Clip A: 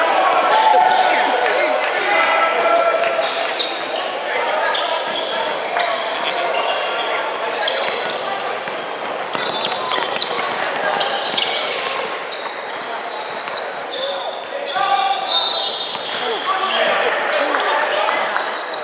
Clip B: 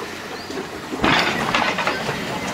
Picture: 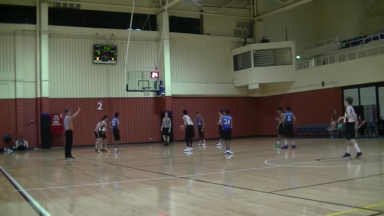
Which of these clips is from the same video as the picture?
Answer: A